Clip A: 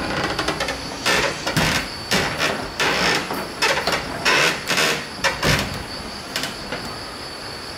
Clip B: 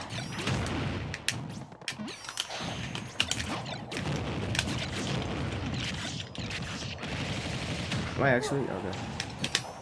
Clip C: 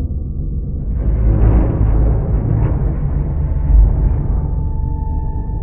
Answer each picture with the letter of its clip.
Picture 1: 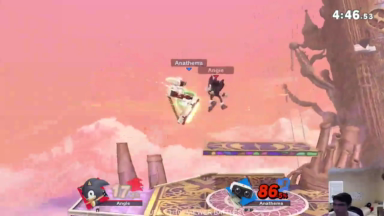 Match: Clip B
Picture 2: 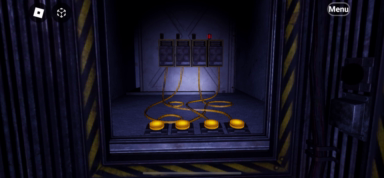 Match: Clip C